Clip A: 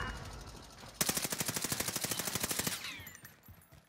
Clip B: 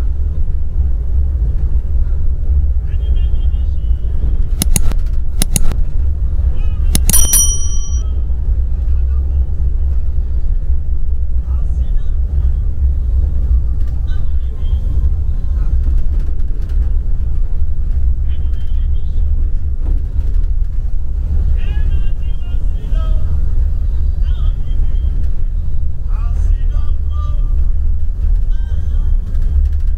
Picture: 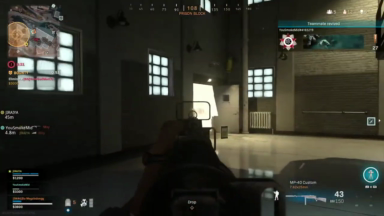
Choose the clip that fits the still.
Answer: A